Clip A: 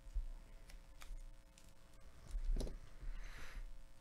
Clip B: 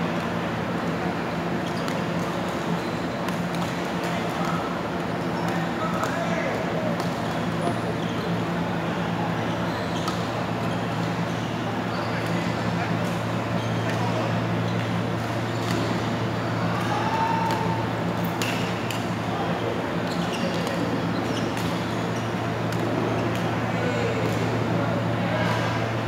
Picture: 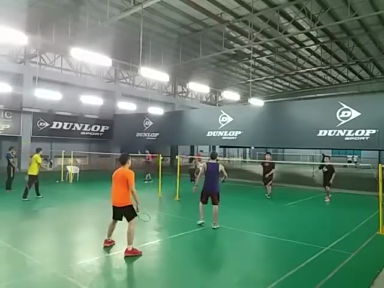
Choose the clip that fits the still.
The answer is B